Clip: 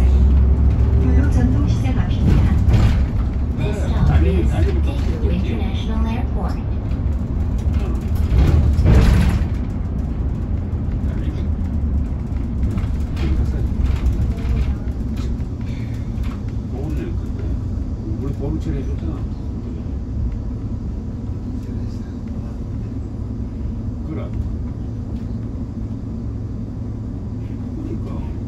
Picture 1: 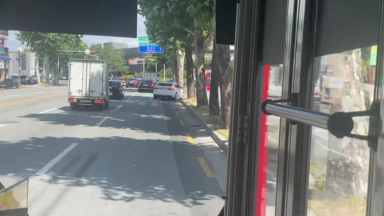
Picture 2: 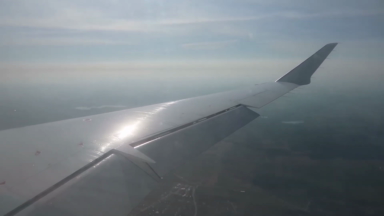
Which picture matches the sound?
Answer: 1